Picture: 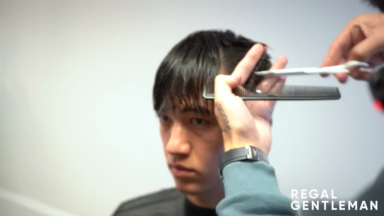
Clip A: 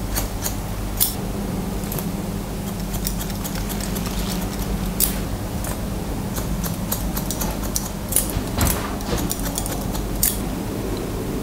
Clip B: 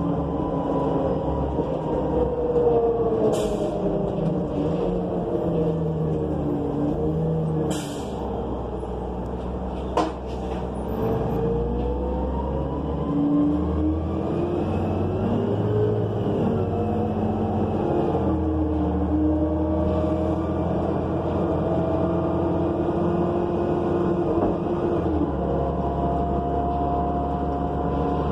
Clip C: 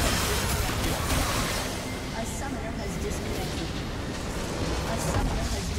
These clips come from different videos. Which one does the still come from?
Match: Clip A